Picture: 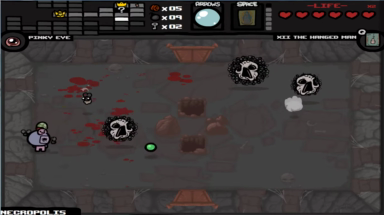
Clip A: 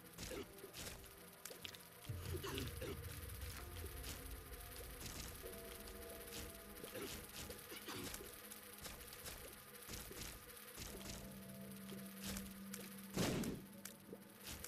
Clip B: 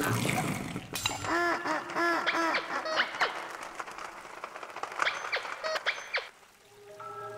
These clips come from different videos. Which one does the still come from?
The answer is A